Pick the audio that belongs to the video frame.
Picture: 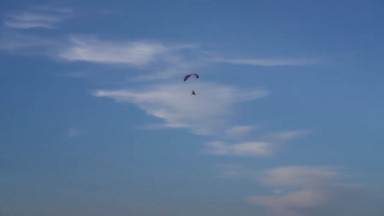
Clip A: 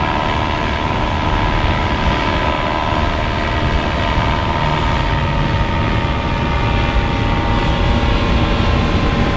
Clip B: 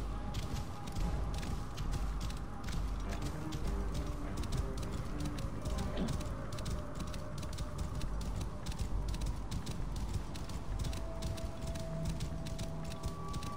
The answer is A